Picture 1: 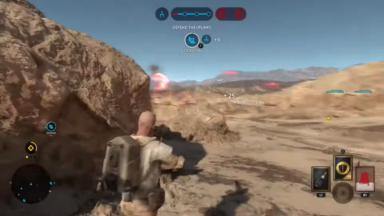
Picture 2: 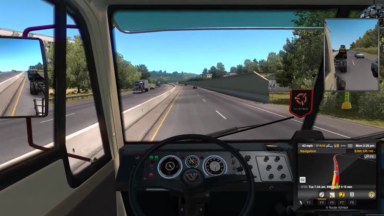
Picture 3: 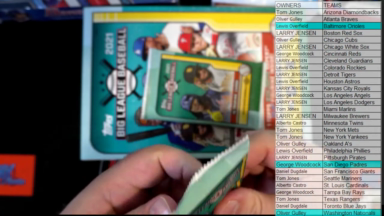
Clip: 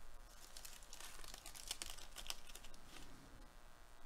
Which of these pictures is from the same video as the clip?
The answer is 3